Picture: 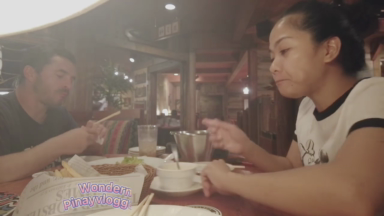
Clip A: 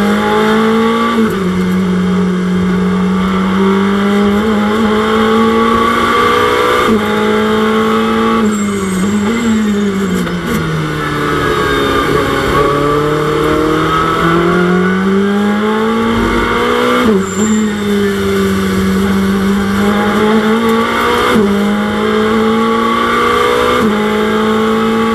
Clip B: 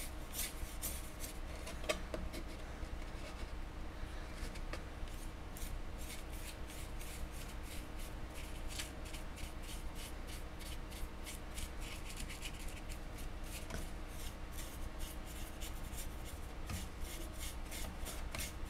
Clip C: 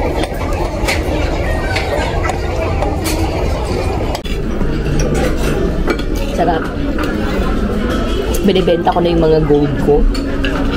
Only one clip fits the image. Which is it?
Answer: C